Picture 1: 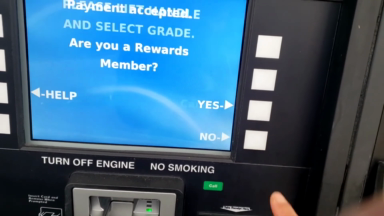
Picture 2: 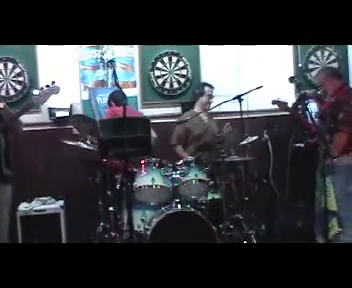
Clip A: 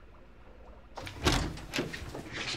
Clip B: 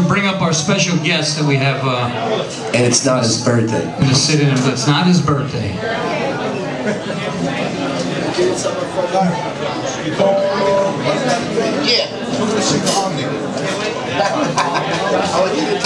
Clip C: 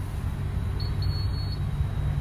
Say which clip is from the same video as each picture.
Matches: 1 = C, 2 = B